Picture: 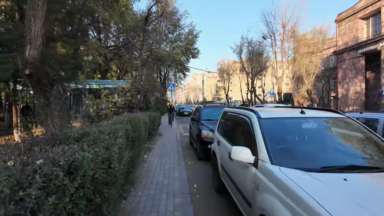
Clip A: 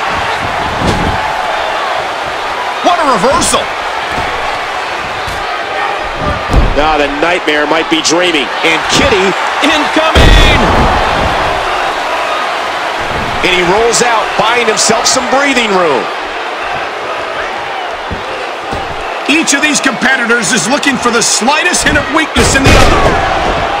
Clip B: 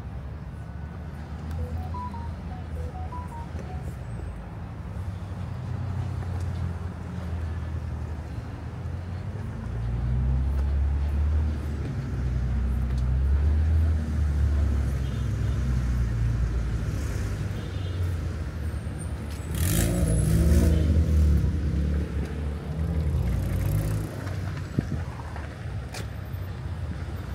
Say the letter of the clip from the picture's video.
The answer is B